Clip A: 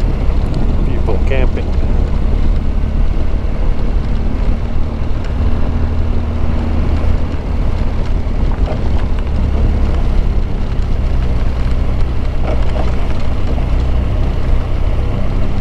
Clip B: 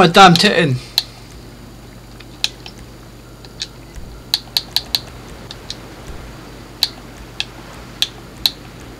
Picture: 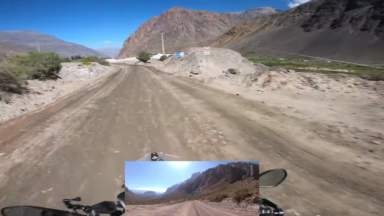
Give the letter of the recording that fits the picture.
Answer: A